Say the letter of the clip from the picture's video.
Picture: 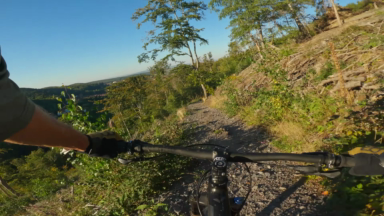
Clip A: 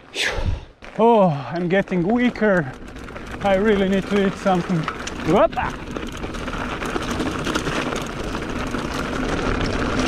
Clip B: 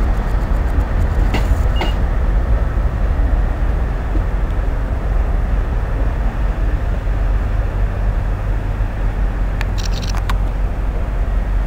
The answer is A